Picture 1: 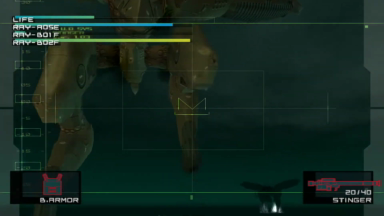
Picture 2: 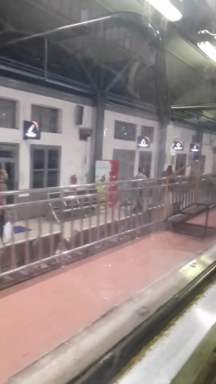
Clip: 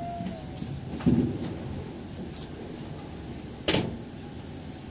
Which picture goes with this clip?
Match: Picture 2